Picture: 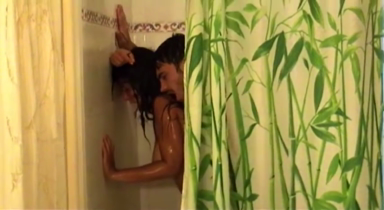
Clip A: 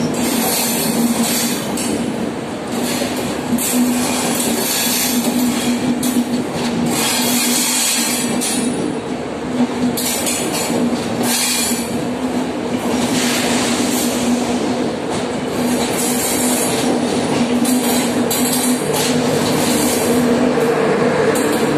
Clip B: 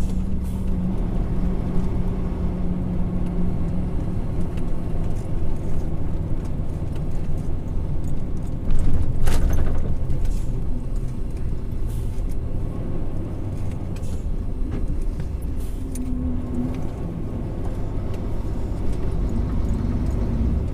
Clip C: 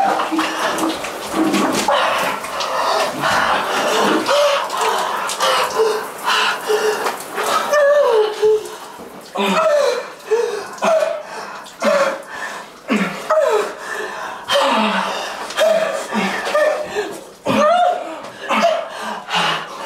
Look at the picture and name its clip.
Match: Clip C